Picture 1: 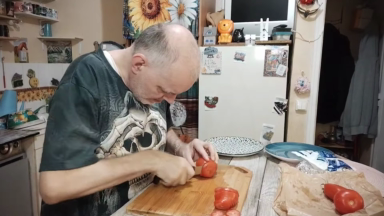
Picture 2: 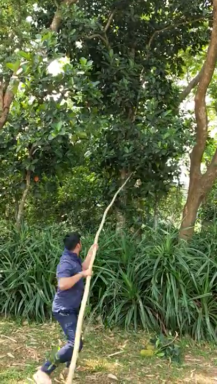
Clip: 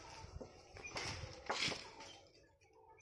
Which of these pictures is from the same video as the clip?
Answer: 2